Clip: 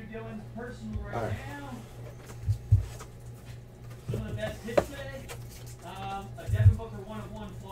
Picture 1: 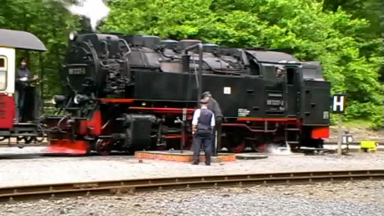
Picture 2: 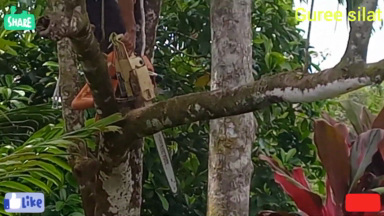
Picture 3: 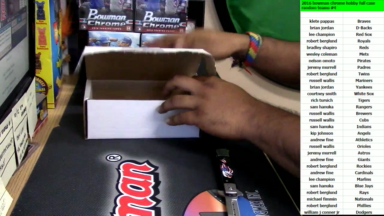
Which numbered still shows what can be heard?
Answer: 3